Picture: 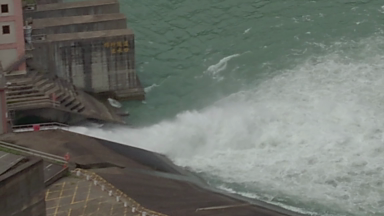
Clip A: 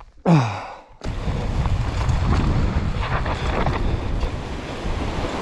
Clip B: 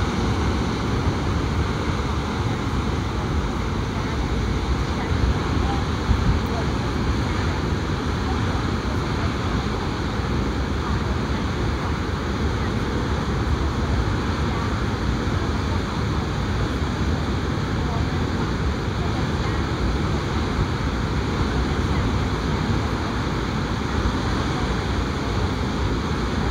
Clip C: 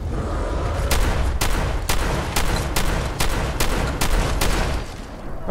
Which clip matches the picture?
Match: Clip B